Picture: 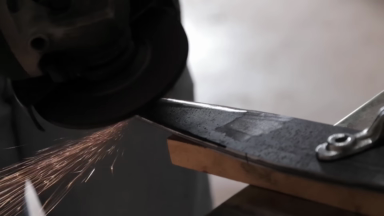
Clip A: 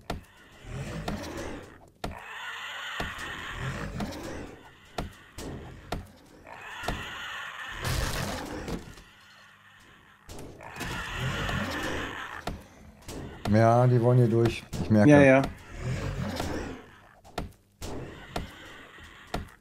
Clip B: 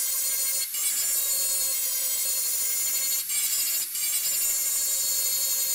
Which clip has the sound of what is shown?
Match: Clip B